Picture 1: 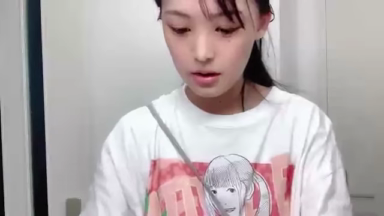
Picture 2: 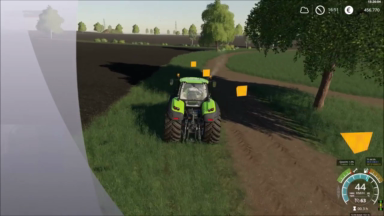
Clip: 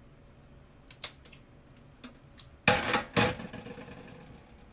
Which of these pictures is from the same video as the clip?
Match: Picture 1